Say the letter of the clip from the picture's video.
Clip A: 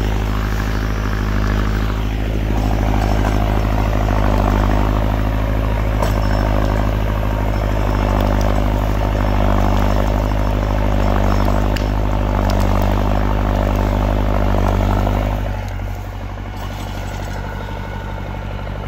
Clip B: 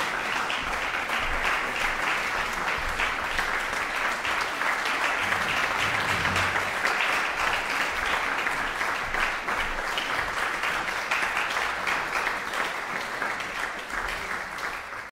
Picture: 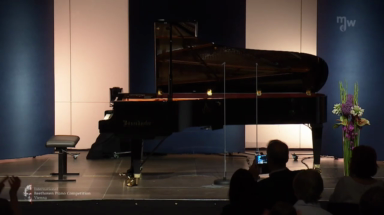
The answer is B